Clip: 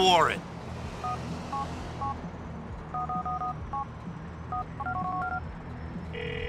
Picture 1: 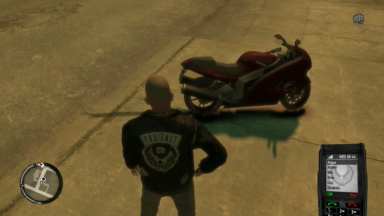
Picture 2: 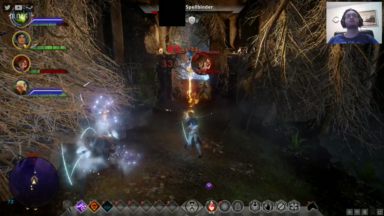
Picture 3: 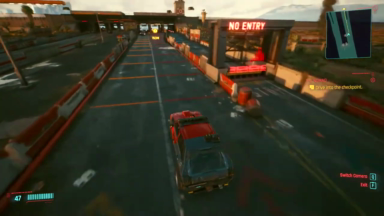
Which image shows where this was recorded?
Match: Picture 1